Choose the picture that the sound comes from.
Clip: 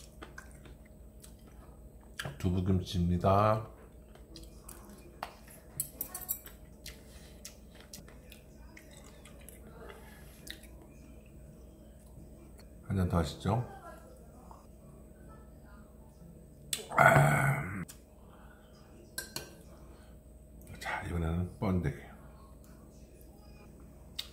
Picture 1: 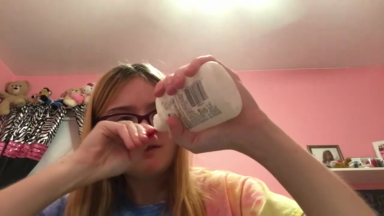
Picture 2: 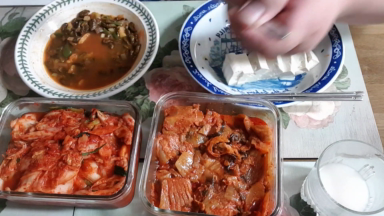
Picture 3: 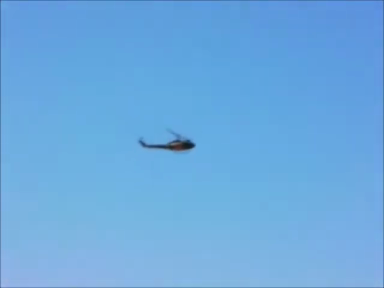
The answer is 2